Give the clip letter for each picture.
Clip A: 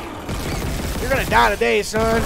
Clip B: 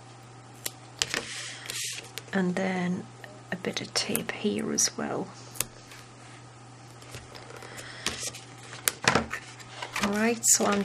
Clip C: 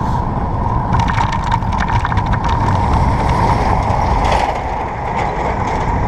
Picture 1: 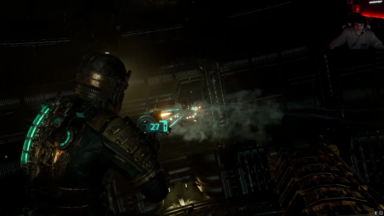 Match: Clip A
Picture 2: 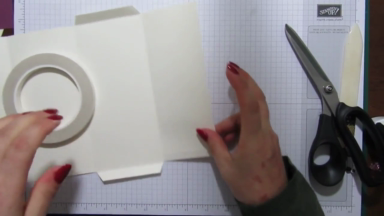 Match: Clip B